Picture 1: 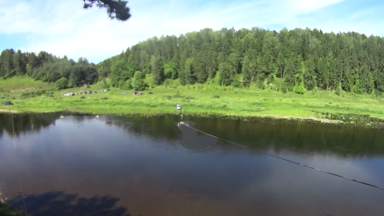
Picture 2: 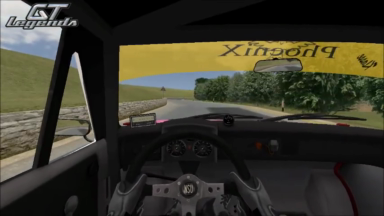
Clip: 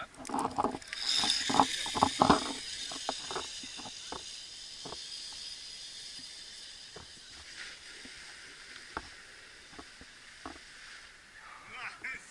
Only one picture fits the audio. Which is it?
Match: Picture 1